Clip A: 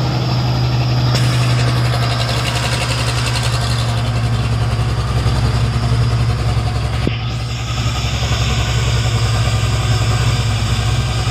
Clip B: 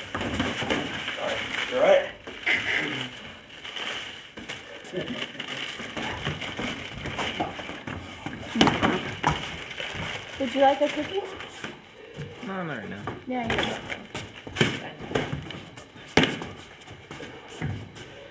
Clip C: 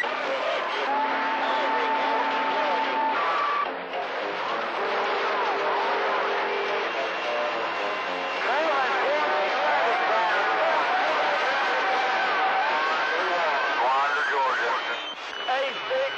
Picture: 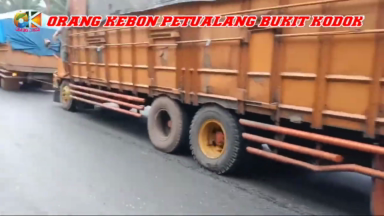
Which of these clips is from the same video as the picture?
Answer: A